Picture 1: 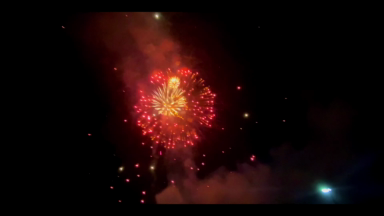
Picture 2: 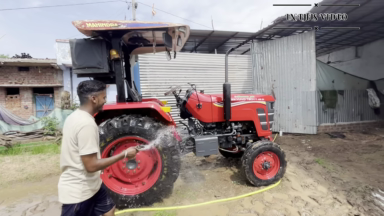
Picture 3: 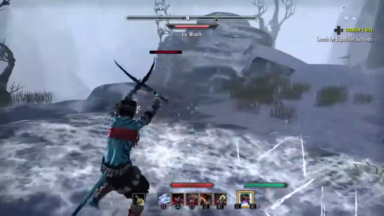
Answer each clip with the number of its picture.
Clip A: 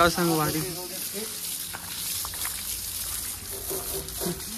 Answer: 2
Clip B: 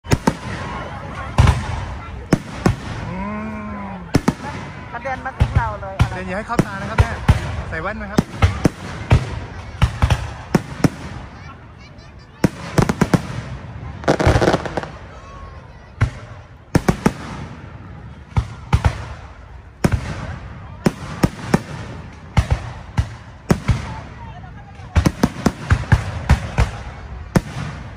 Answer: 1